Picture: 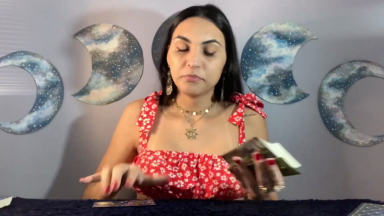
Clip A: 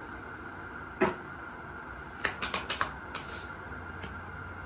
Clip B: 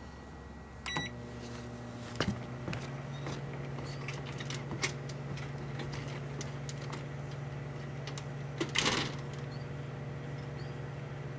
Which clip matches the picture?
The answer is A